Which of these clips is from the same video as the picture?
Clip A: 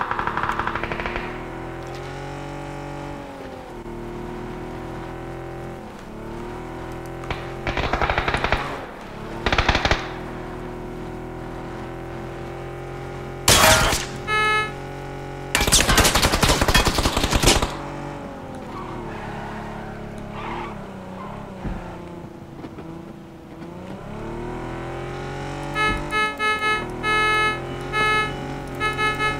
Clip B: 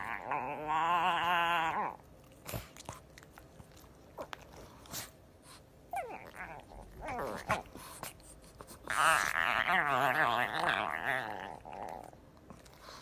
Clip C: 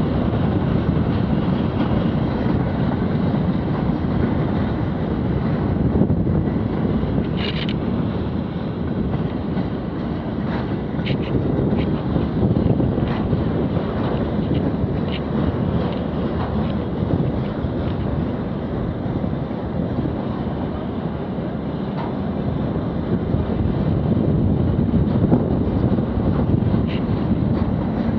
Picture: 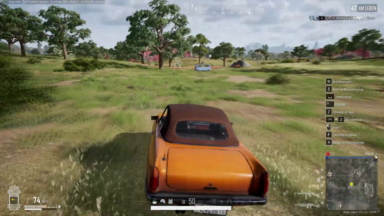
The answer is A